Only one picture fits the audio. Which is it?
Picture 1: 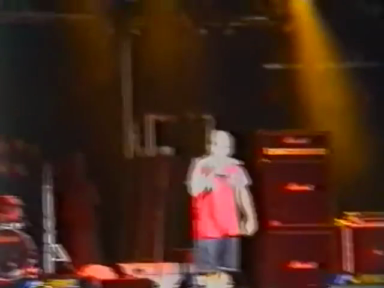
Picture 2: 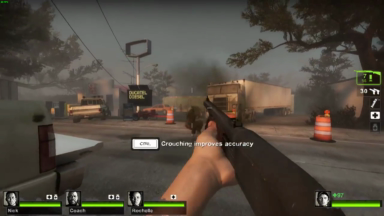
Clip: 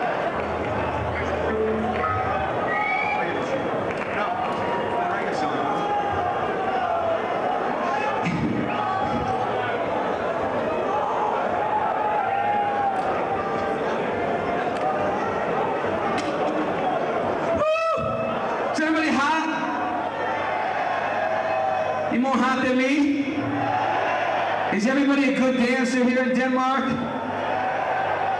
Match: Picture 1